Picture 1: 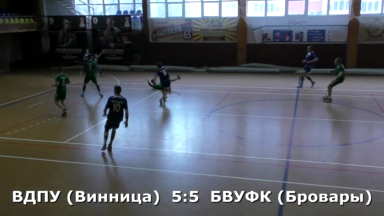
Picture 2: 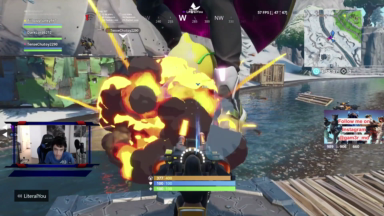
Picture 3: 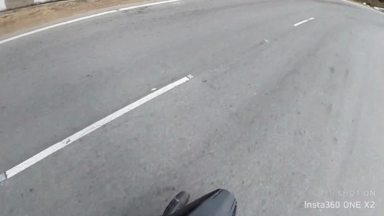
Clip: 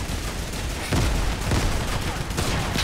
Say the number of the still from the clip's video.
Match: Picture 2